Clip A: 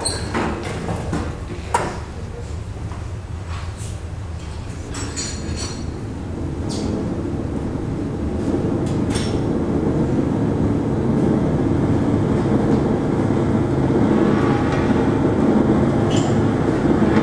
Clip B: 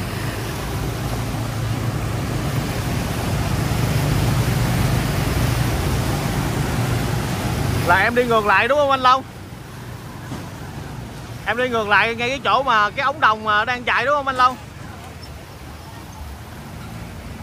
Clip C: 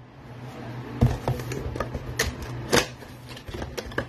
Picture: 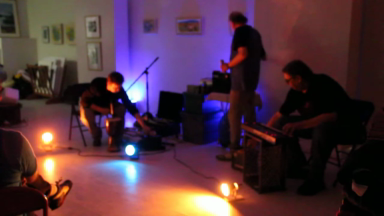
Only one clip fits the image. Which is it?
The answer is A